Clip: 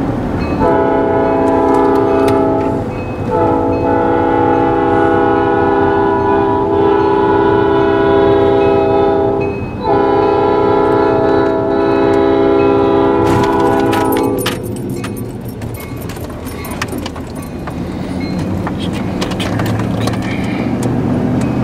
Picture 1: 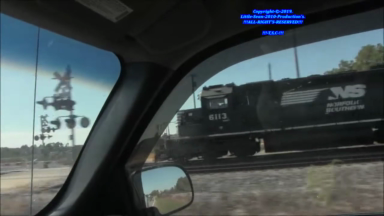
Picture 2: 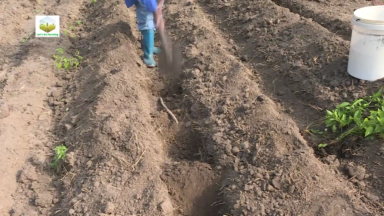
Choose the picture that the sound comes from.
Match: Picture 1